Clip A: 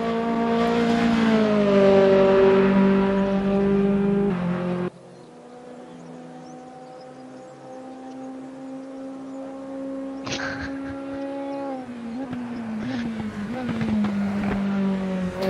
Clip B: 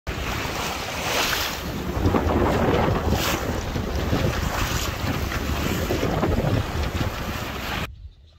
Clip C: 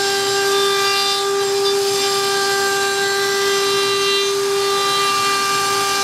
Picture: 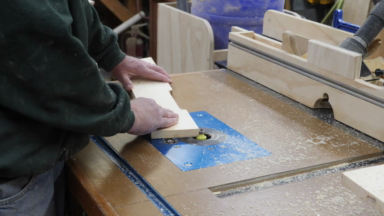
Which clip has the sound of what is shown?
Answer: C